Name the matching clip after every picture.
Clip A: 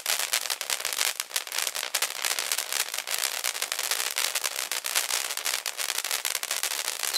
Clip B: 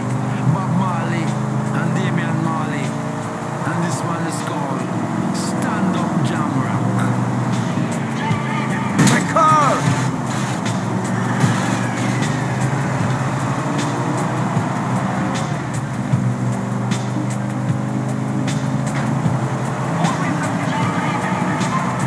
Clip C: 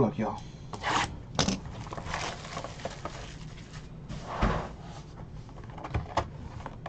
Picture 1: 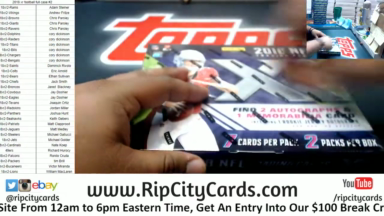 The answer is C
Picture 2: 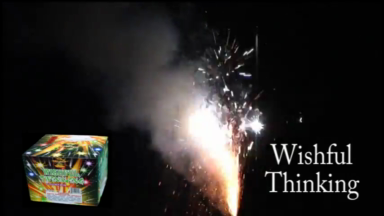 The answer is A